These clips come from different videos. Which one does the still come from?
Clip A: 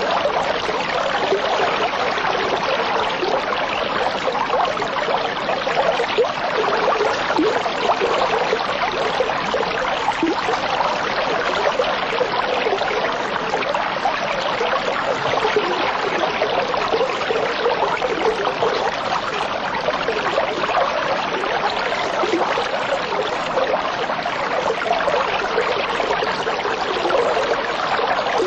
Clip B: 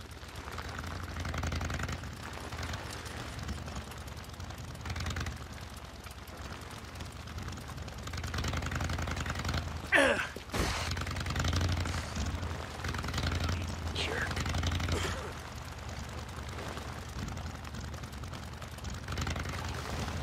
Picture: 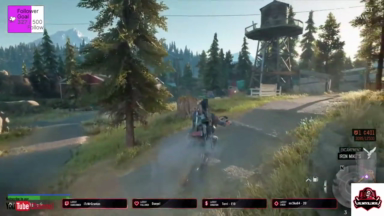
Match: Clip B